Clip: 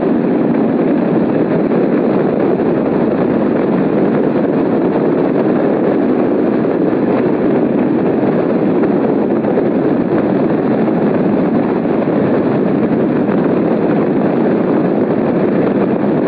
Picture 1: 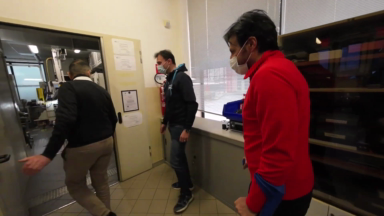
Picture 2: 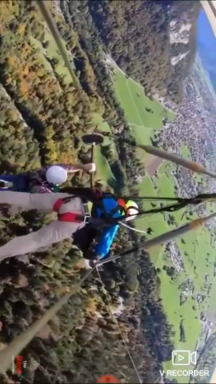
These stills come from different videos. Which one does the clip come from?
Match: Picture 2